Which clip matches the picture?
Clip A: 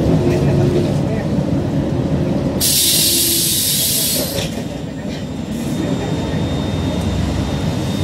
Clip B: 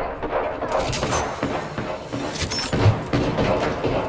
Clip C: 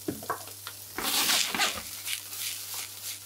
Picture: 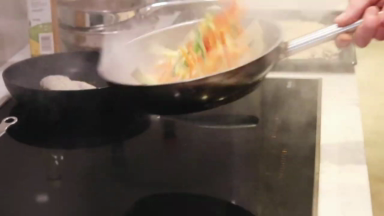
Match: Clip C